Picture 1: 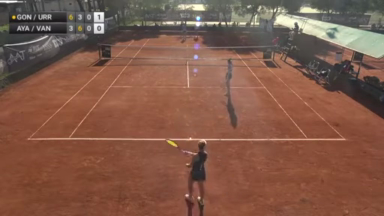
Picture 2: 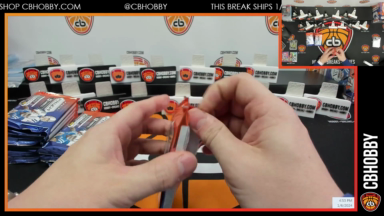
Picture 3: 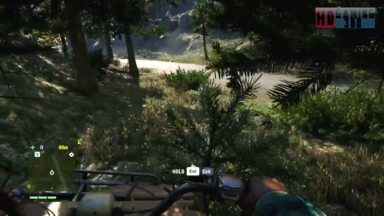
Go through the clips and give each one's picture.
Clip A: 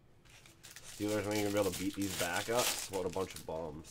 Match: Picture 2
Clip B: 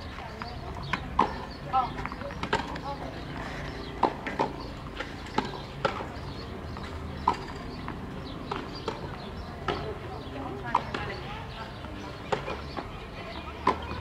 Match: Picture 1